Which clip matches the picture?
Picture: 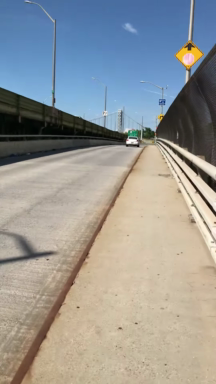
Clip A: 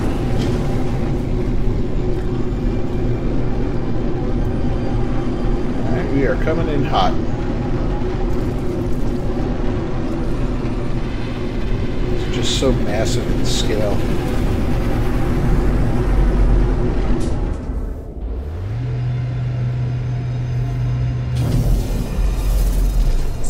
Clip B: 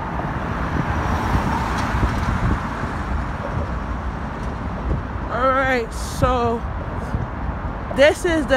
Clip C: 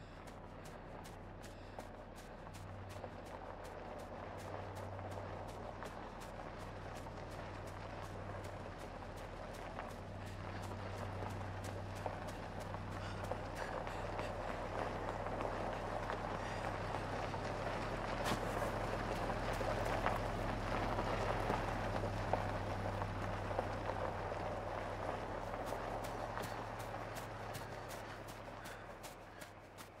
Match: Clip B